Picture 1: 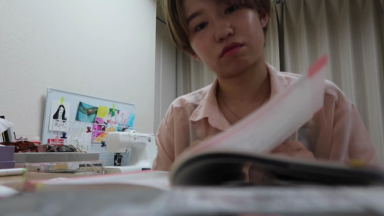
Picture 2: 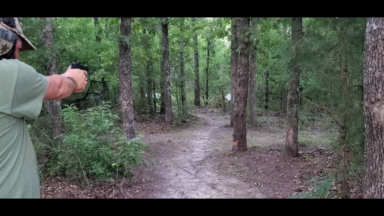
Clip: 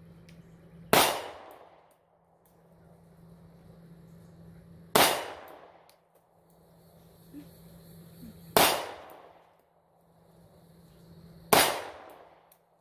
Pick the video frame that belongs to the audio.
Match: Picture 2